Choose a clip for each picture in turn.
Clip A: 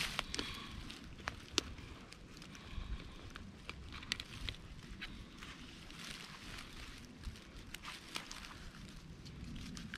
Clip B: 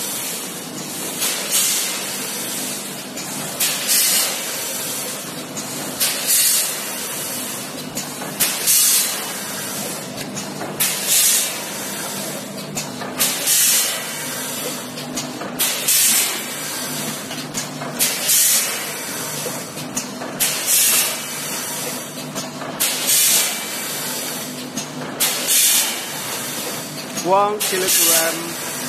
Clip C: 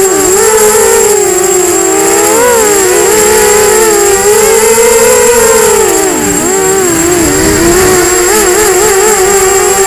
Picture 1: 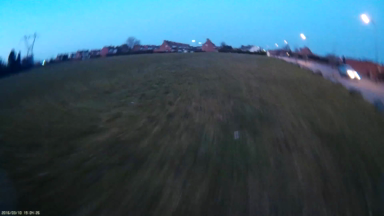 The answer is C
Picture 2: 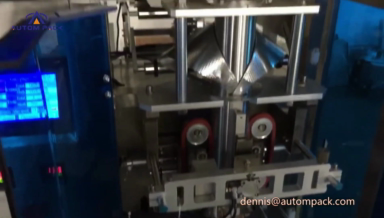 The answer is B